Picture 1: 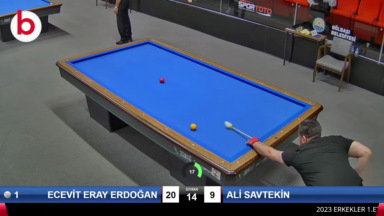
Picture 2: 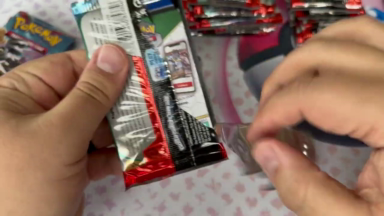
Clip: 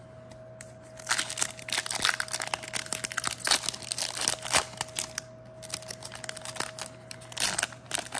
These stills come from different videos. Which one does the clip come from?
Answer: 2